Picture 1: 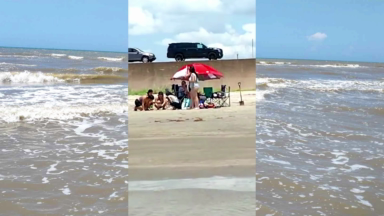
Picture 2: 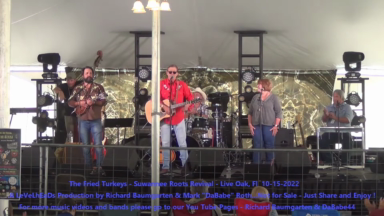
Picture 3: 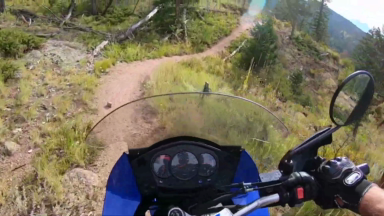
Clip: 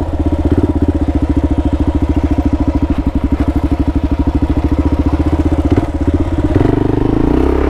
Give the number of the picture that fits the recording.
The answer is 3